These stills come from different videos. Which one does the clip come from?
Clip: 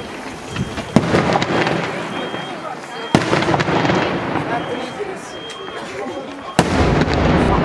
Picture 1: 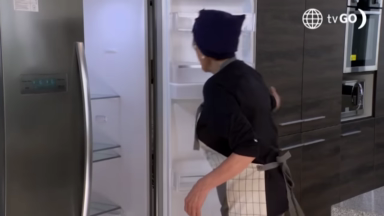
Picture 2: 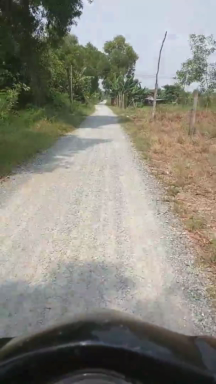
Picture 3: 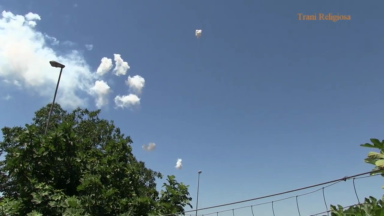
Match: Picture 3